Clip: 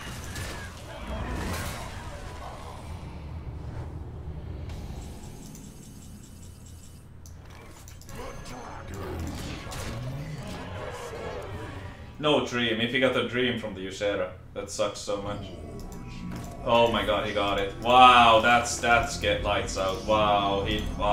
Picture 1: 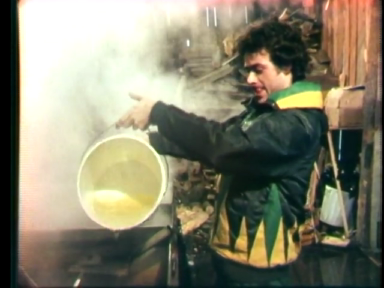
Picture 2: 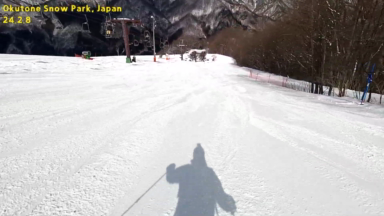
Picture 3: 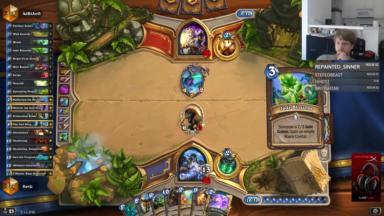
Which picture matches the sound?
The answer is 3